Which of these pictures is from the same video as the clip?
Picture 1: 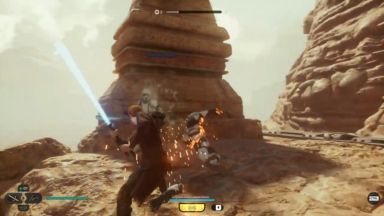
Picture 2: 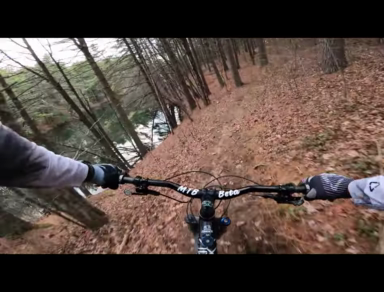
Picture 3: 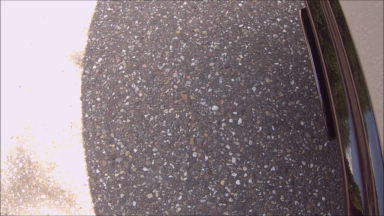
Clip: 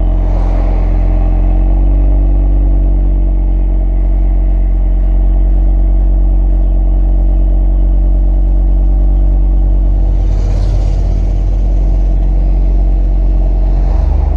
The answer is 3